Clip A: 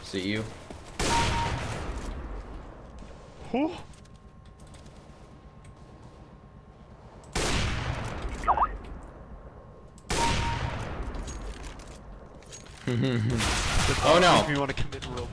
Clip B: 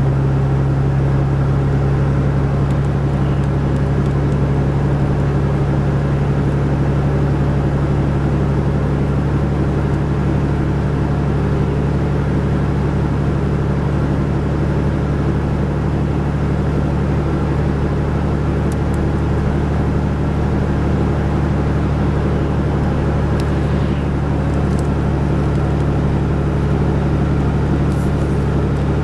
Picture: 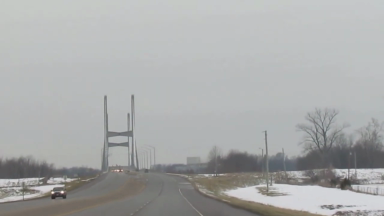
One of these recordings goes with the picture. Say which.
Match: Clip B